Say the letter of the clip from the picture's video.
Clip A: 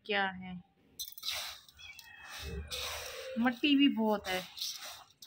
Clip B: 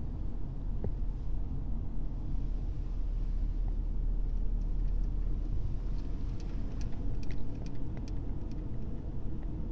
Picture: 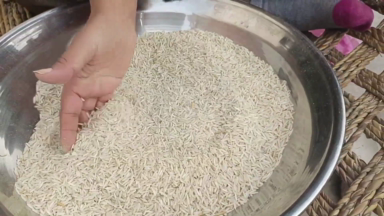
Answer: A